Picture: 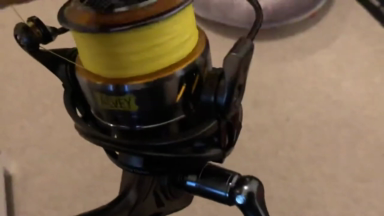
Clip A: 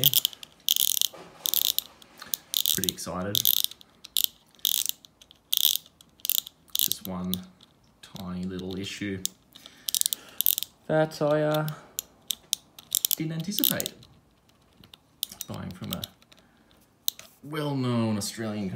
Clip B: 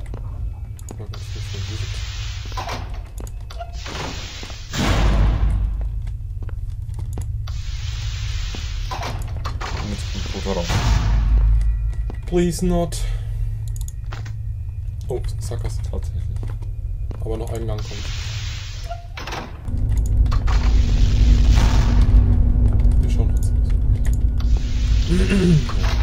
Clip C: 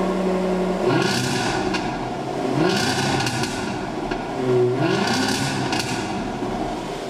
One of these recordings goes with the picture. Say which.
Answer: A